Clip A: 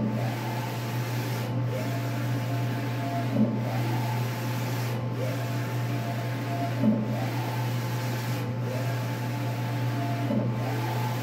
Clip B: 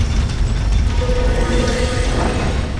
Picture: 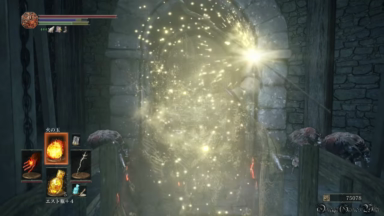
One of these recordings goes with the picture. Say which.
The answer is B